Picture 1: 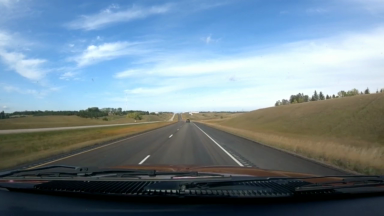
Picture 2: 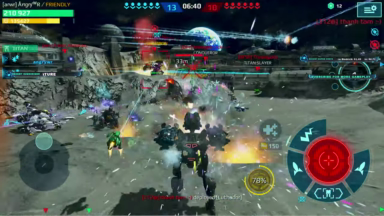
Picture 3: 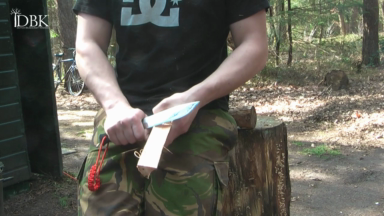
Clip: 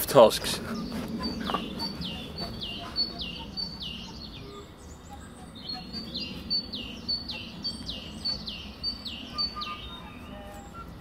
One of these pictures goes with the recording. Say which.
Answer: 3